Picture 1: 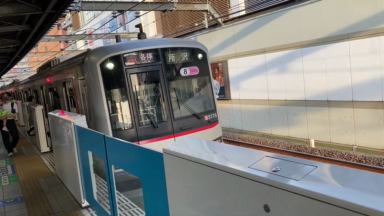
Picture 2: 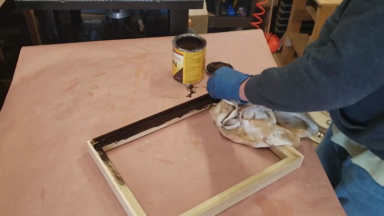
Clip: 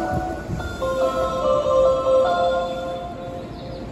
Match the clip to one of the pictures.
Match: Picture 1